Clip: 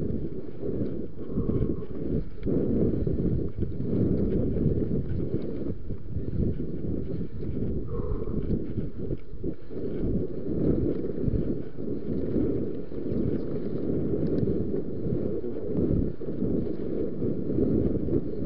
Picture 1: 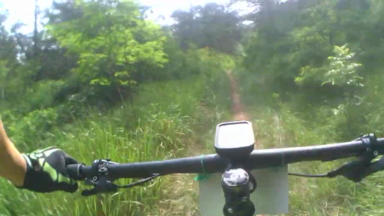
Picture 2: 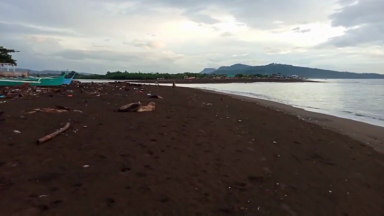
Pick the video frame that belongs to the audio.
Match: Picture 1